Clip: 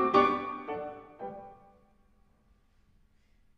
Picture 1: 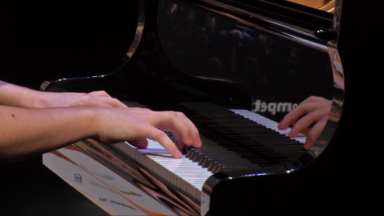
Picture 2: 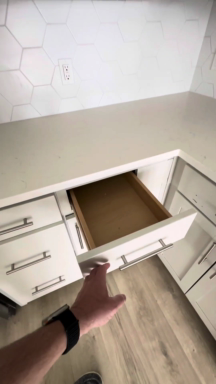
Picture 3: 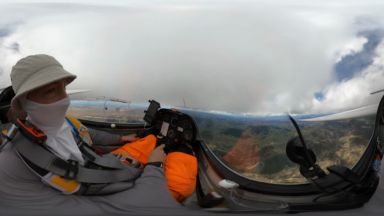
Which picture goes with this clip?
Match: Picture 1